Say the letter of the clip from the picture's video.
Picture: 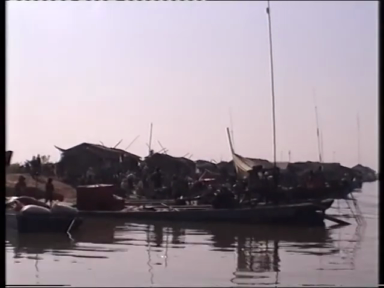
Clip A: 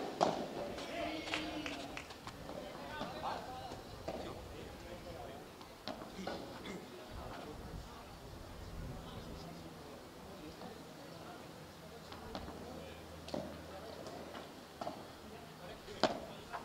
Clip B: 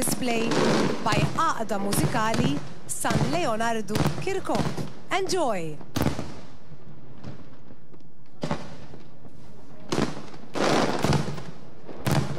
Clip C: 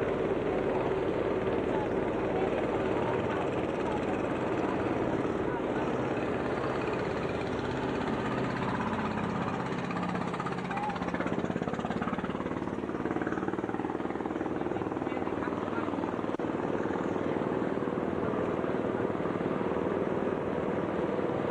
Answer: C